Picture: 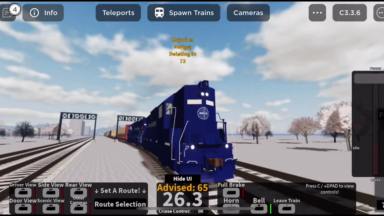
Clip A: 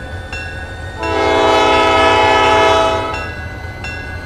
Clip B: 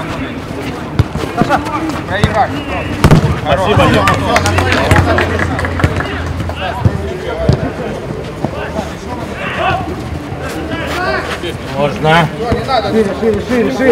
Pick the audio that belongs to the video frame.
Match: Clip A